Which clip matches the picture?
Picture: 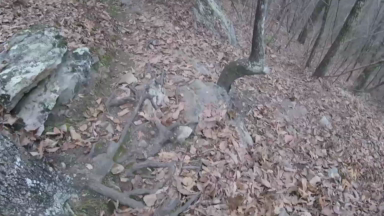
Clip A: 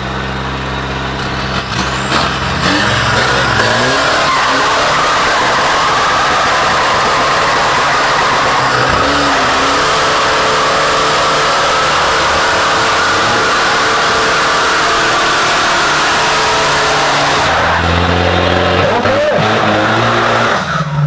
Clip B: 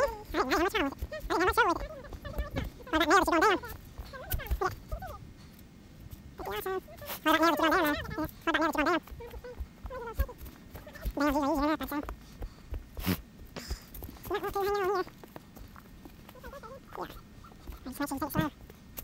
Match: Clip B